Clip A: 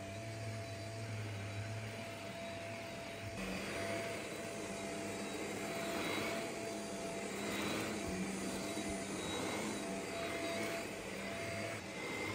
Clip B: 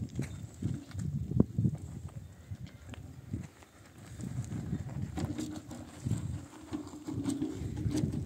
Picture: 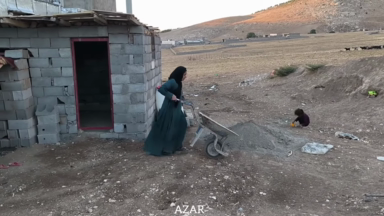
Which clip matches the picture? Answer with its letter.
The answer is B